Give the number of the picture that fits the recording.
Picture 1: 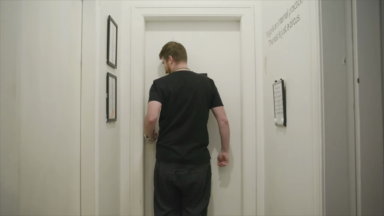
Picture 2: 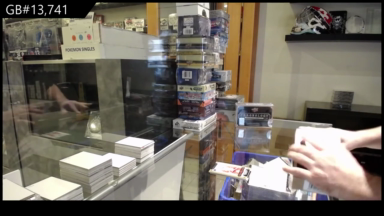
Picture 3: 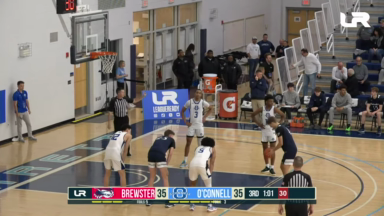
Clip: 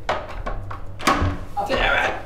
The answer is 1